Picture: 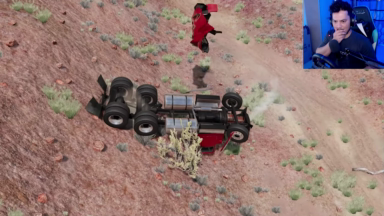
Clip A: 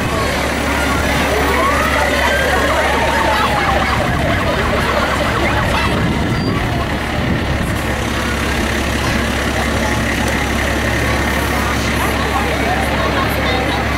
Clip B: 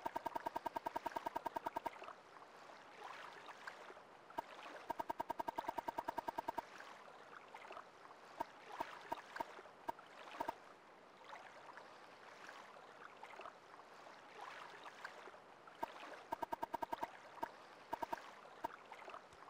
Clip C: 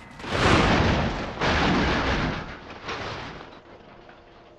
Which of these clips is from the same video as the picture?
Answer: C